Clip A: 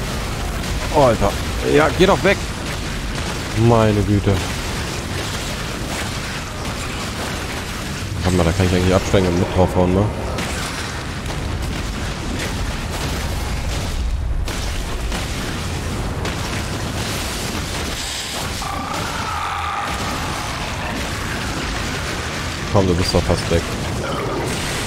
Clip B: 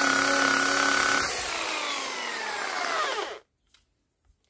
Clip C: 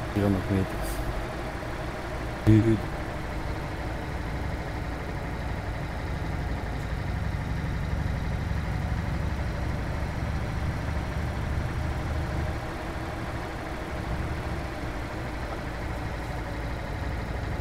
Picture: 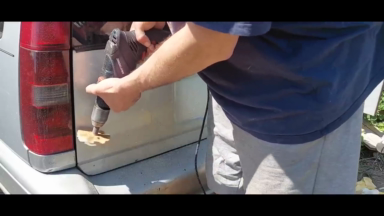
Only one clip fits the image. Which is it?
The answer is B